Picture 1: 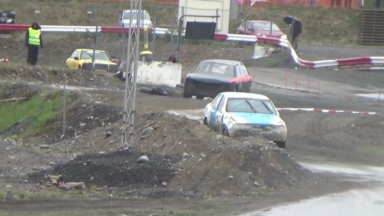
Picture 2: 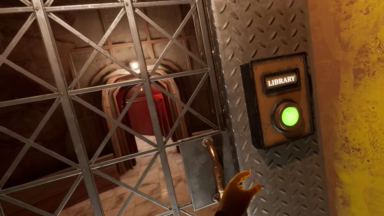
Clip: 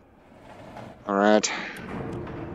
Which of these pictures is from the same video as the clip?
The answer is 2